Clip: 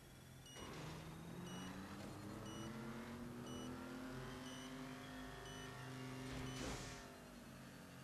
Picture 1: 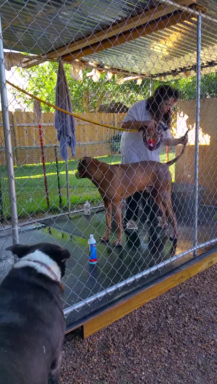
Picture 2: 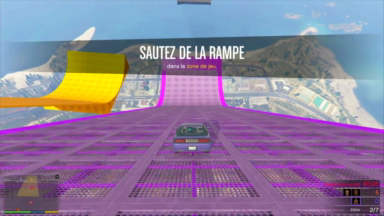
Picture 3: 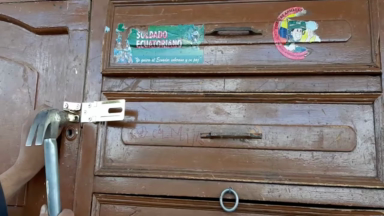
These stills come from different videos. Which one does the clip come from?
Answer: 2